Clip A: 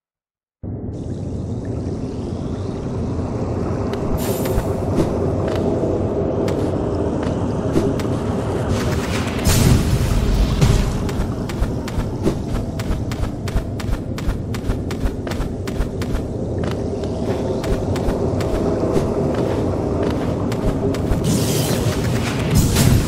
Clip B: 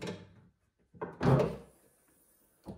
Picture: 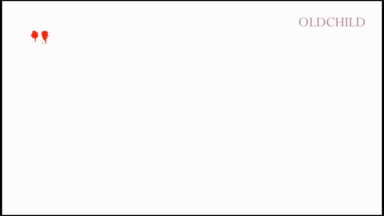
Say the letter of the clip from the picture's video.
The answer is A